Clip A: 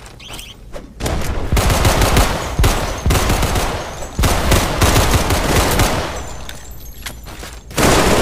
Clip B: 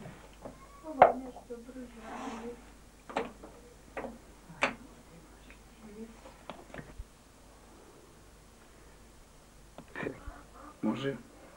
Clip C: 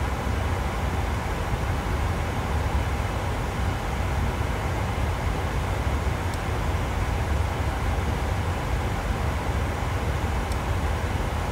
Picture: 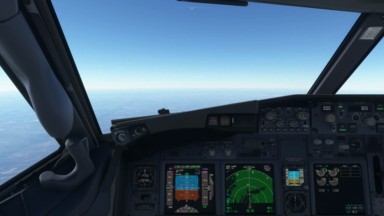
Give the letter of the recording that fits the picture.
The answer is C